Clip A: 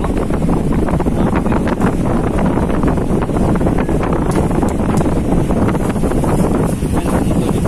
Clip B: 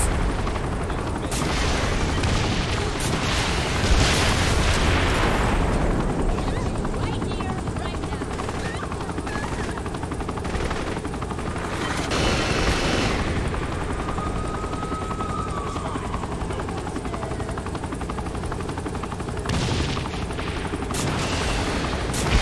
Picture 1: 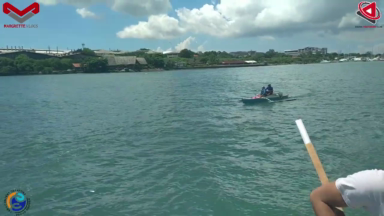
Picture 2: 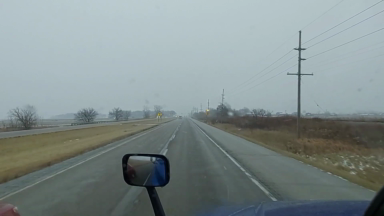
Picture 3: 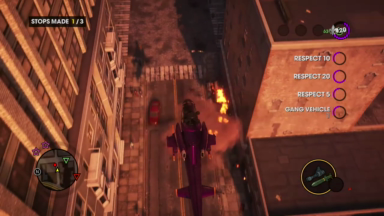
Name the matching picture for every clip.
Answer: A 1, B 3